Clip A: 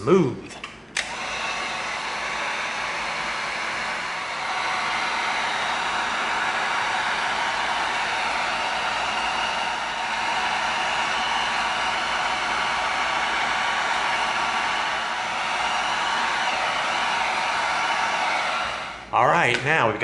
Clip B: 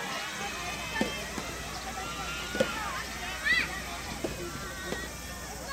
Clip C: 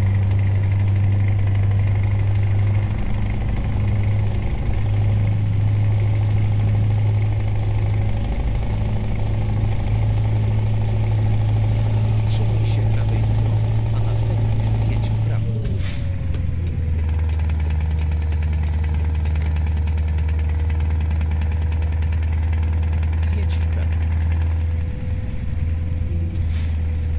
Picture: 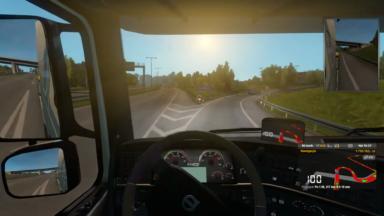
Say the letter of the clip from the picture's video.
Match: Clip C